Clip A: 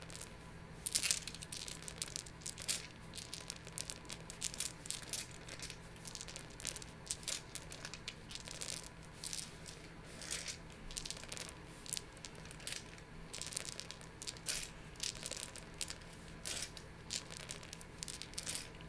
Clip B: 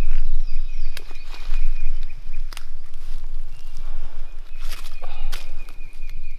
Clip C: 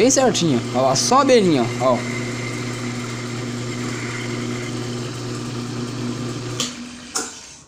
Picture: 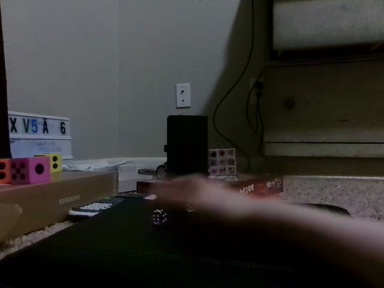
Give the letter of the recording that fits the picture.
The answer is A